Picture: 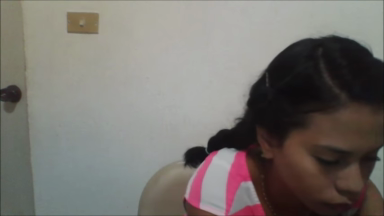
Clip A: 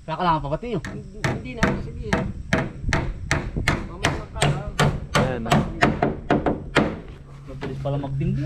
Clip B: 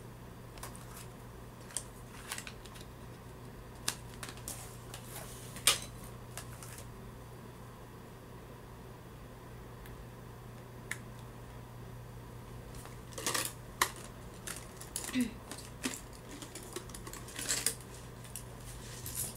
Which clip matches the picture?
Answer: B